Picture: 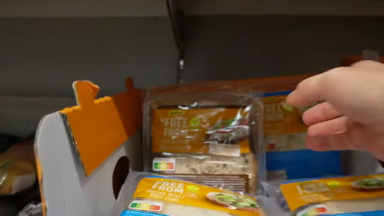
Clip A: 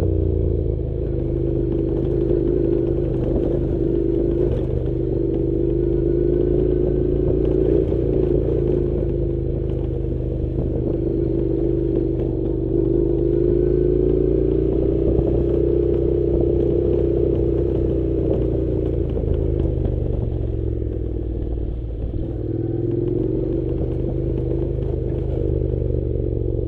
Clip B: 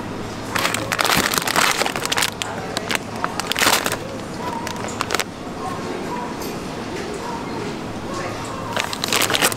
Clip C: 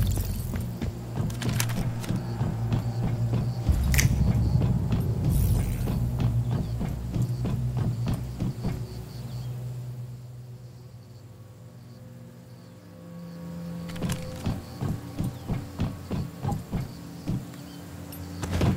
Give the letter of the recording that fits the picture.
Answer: B